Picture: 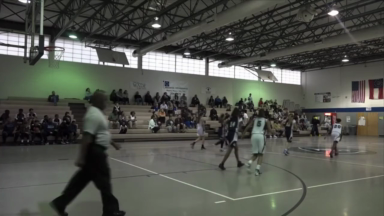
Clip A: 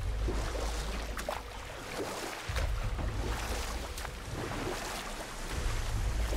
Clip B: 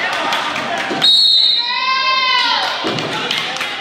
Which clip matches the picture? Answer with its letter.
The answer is B